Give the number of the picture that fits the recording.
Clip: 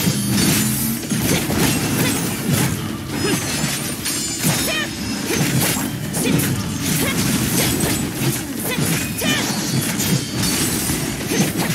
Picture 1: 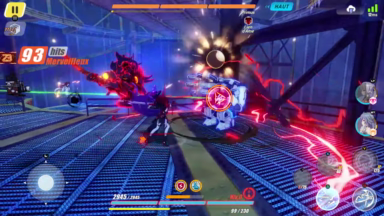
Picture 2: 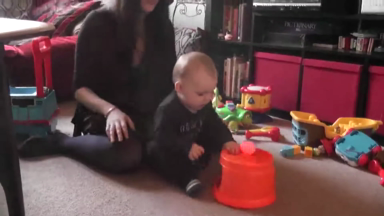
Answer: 1